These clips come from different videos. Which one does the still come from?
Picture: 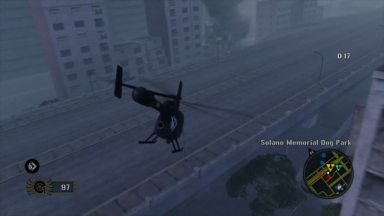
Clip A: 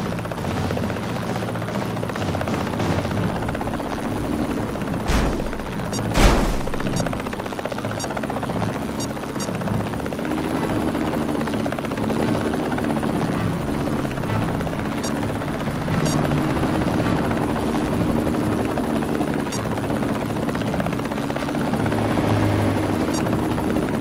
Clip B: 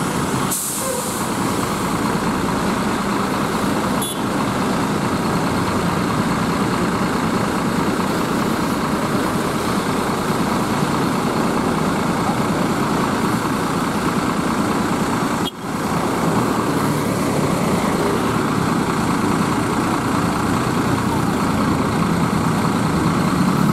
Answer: A